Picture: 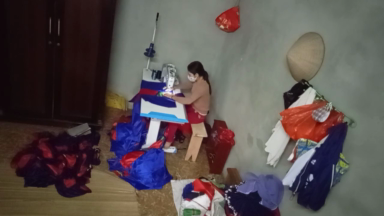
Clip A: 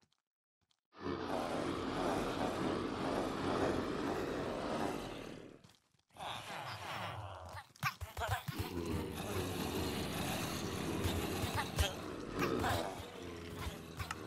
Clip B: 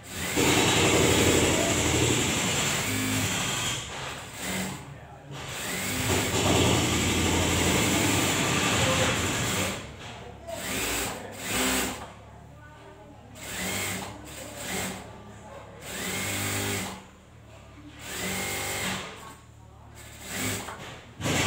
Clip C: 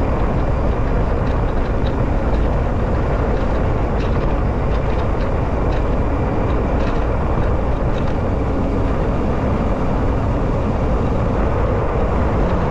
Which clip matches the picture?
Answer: B